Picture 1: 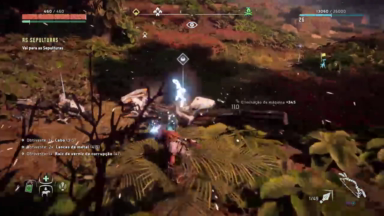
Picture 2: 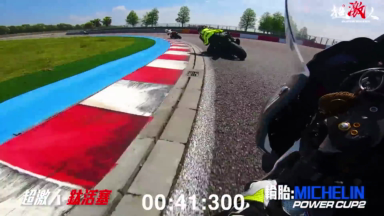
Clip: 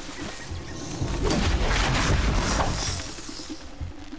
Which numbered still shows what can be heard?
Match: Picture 1